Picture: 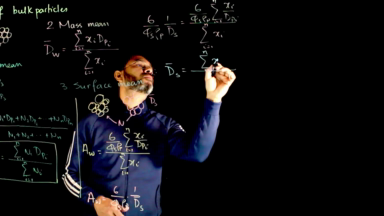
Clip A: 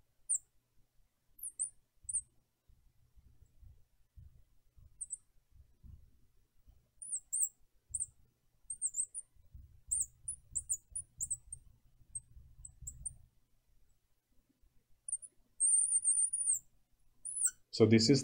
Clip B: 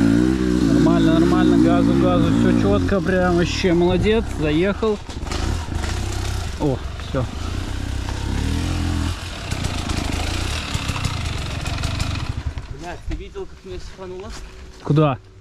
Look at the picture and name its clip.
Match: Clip A